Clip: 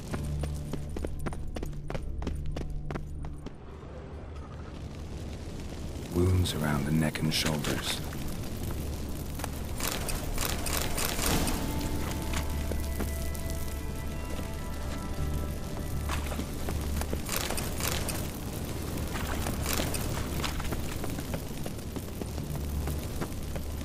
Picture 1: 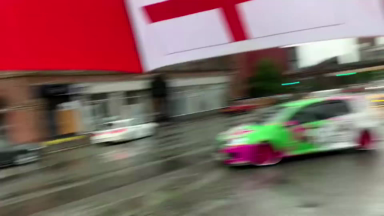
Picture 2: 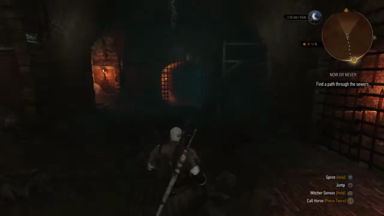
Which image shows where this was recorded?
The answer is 2